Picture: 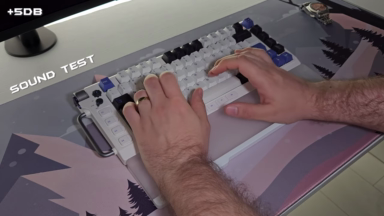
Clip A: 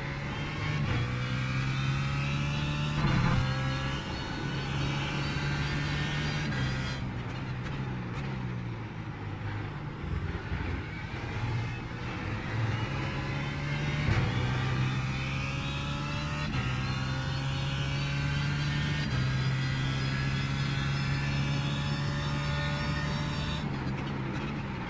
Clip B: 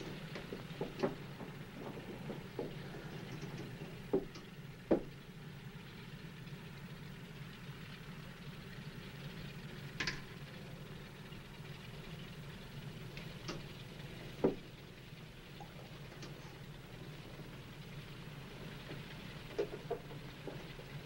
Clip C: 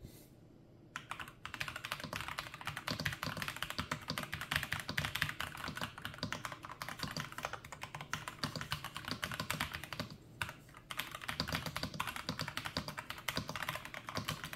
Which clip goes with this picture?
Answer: C